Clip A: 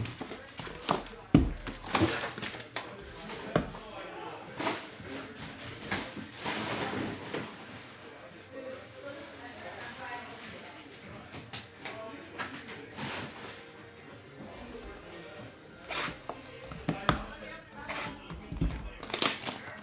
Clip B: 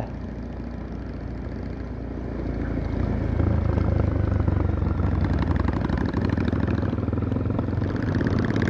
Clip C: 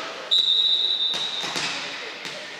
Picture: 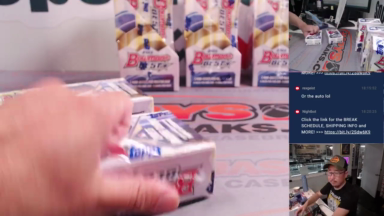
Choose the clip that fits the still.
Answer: A